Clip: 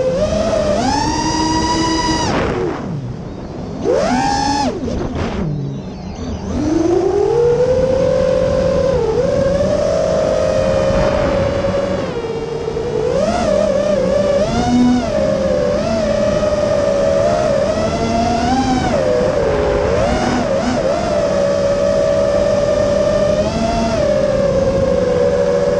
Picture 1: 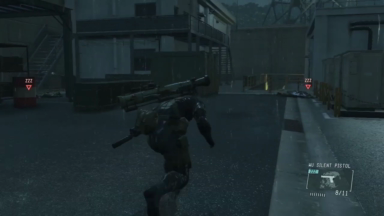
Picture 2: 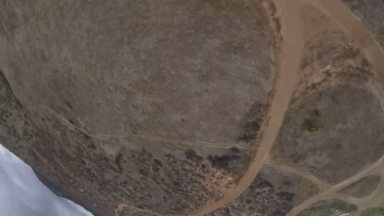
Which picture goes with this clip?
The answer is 2